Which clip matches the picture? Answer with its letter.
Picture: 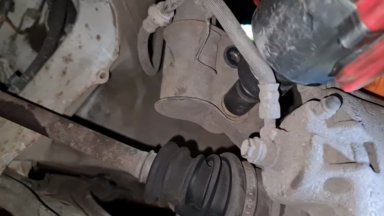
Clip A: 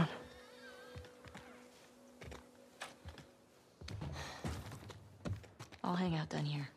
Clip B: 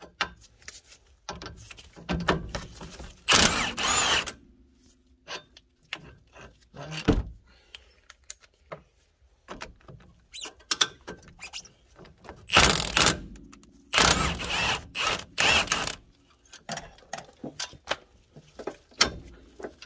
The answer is B